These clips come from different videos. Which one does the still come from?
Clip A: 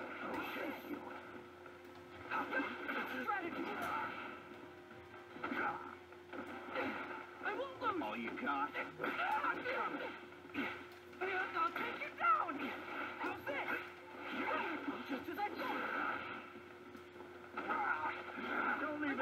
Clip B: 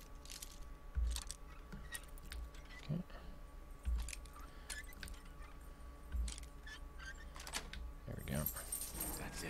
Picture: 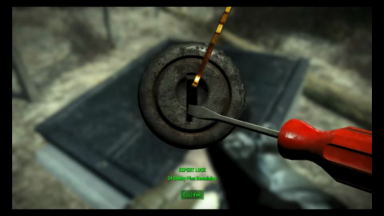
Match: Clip B